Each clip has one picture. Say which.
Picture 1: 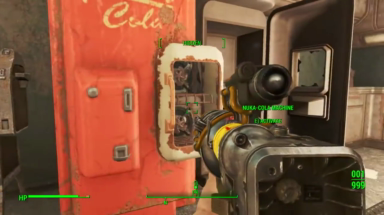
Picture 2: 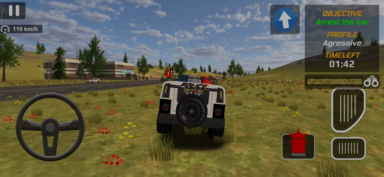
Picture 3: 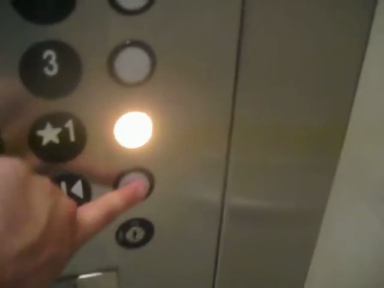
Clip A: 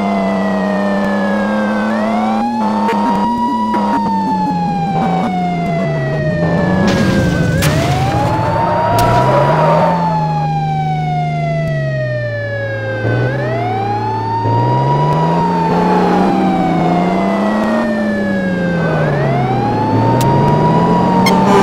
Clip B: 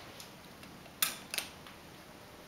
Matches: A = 2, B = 3